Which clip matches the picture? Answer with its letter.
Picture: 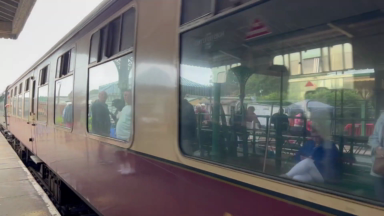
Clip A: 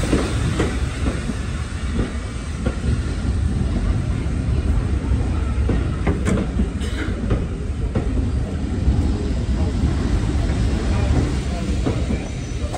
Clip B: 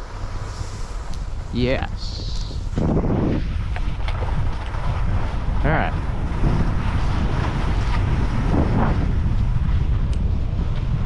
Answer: A